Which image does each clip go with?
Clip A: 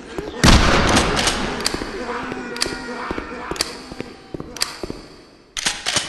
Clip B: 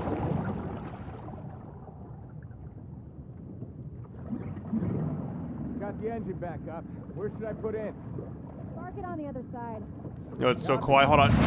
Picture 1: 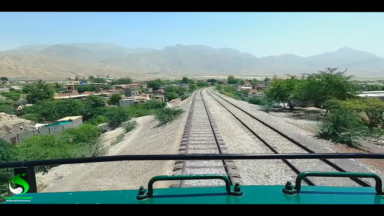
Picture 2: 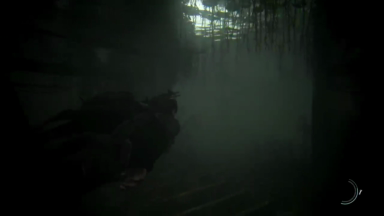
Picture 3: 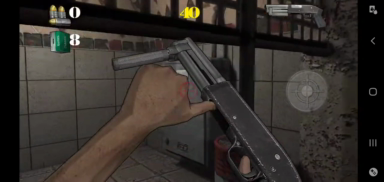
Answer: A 3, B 2